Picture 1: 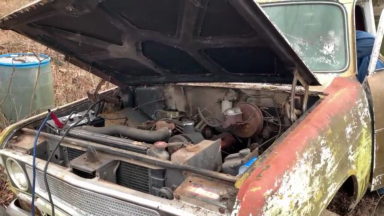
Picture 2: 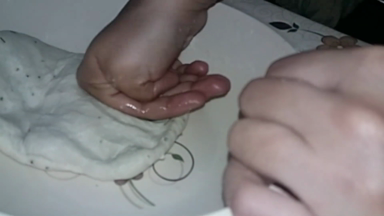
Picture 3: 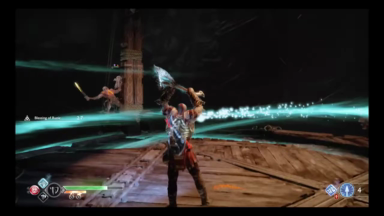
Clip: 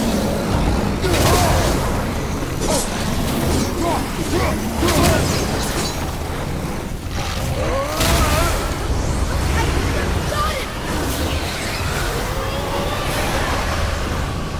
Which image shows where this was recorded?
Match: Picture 3